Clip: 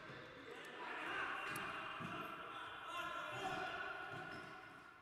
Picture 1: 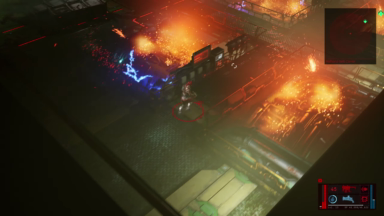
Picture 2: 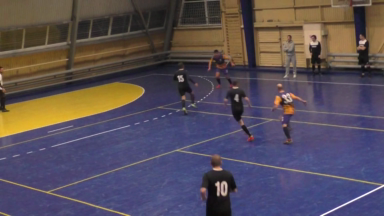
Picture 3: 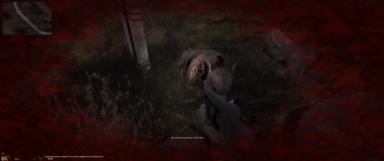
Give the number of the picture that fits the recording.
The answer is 2